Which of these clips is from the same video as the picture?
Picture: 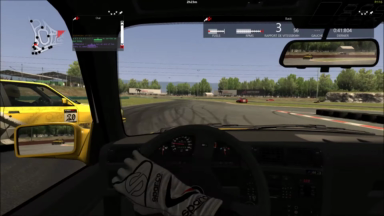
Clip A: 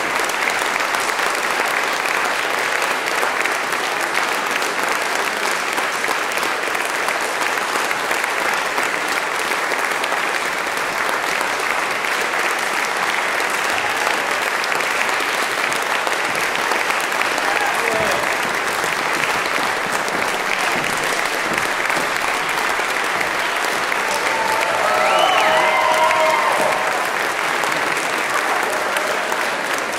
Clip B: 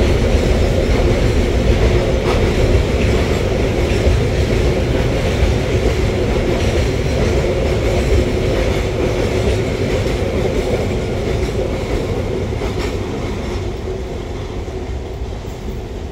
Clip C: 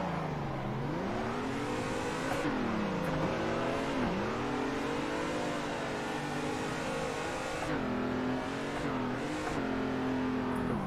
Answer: C